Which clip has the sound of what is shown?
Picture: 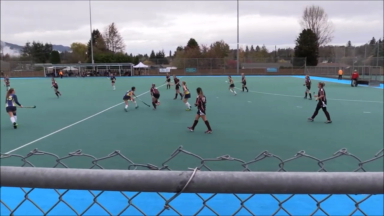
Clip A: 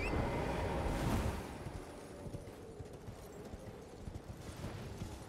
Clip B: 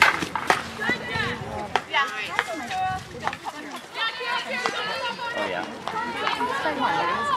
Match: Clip B